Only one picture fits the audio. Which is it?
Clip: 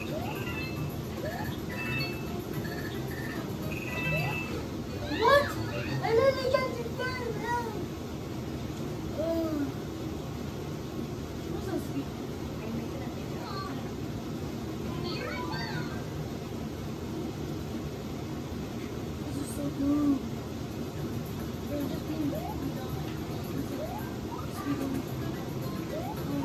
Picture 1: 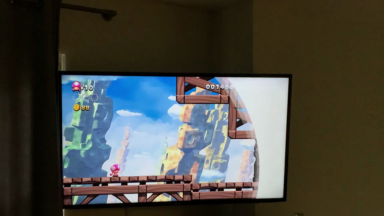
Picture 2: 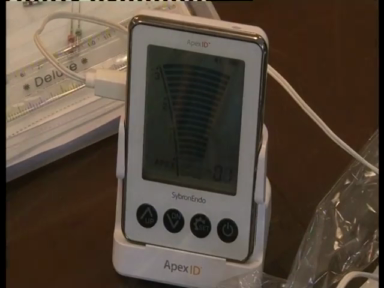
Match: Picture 1